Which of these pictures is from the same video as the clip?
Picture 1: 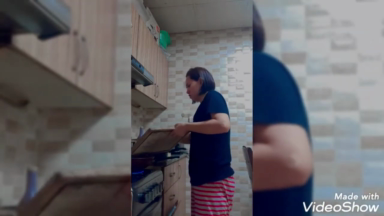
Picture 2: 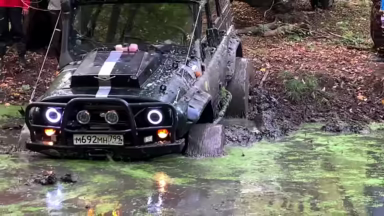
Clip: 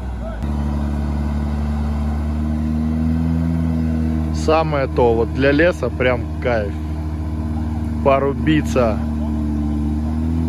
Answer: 2